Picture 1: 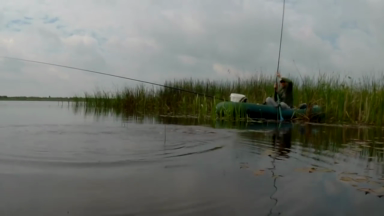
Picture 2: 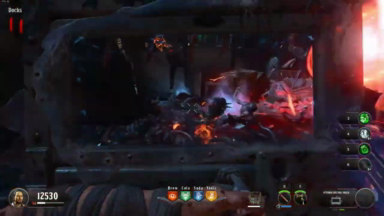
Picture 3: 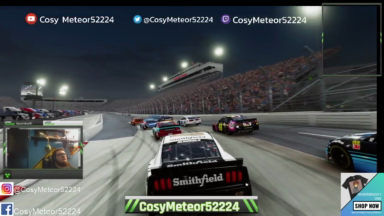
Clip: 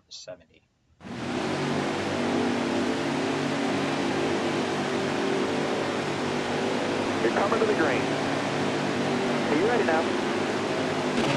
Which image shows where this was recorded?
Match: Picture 3